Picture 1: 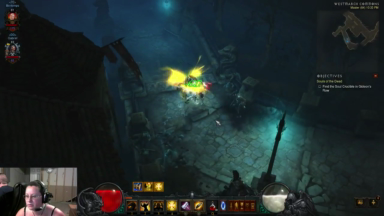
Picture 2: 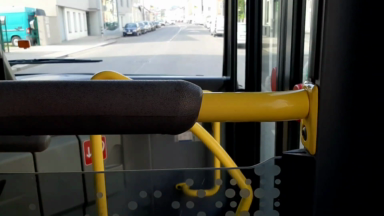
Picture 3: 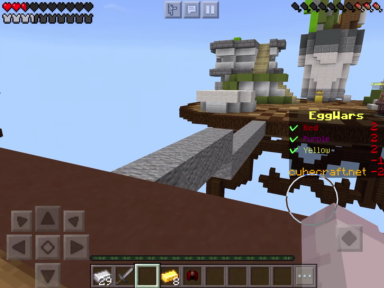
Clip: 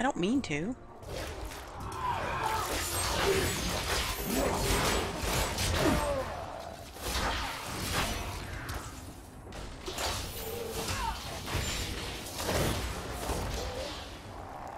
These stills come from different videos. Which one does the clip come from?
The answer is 1